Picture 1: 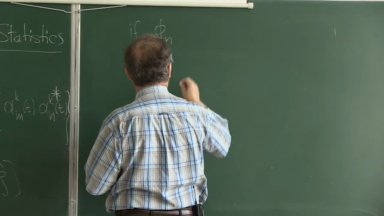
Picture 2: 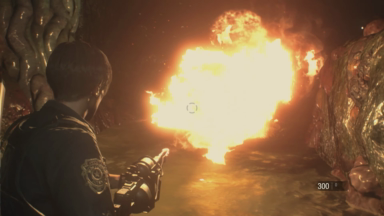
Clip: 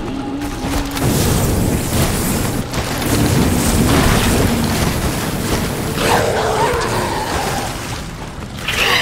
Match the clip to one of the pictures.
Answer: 2